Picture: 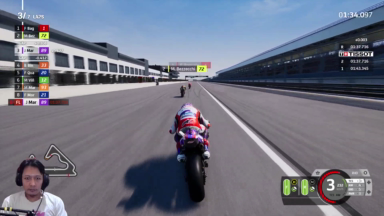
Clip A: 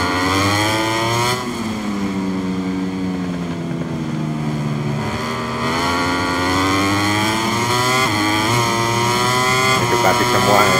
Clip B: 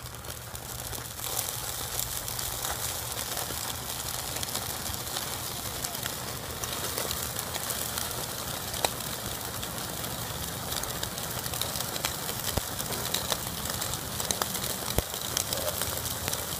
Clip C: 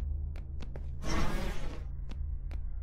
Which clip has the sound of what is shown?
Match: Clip A